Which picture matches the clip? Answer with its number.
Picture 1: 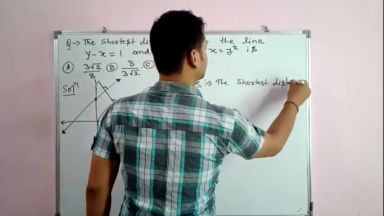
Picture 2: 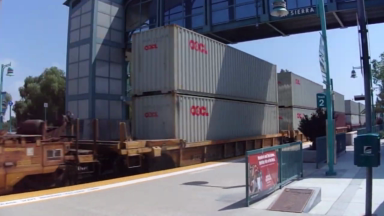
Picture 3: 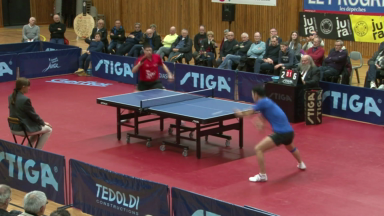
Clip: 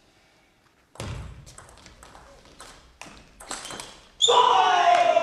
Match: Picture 3